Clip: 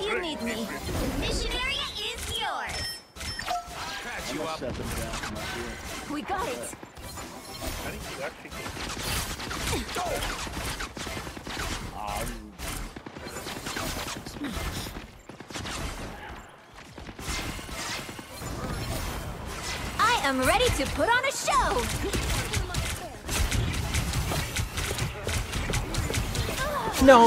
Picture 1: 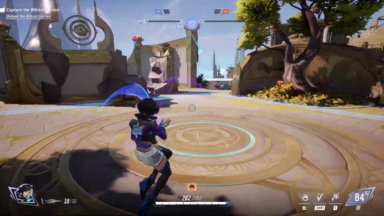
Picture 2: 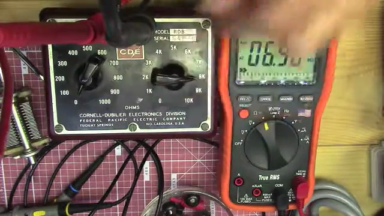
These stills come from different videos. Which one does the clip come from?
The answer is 1